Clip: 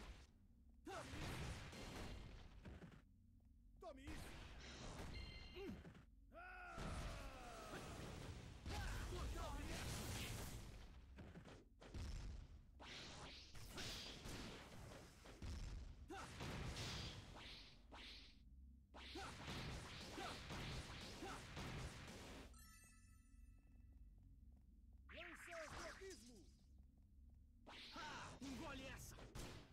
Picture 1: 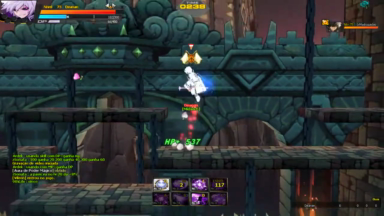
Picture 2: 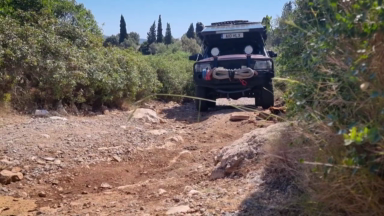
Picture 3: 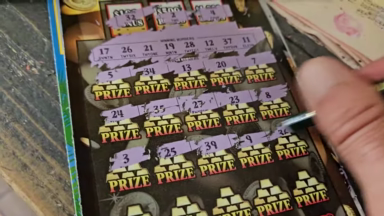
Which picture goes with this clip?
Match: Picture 1